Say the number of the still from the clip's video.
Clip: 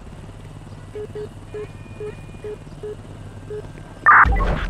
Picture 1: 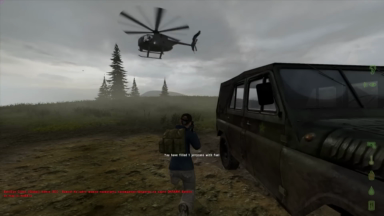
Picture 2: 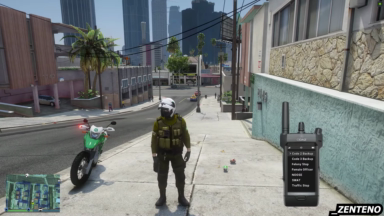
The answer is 2